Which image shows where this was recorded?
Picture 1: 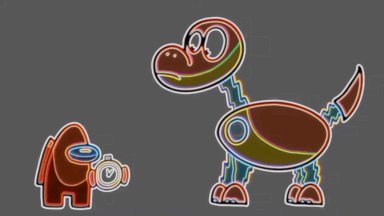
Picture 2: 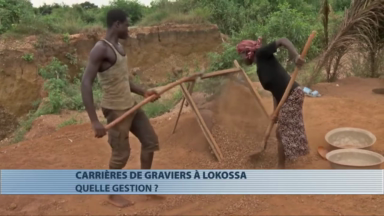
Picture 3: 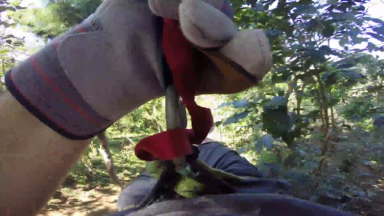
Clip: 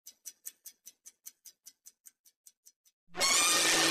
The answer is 1